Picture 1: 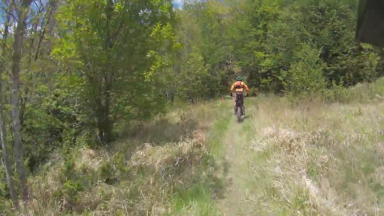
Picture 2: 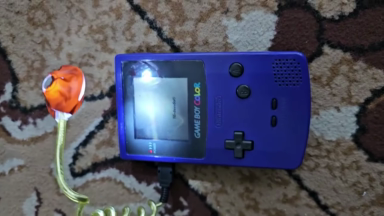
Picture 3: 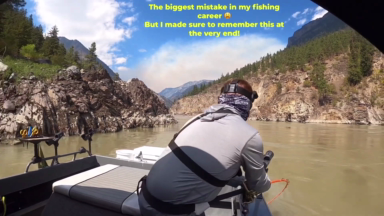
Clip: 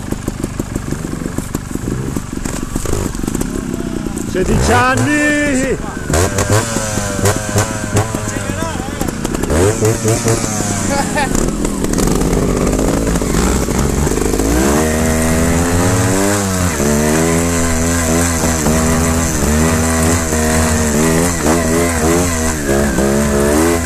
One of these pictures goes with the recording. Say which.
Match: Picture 1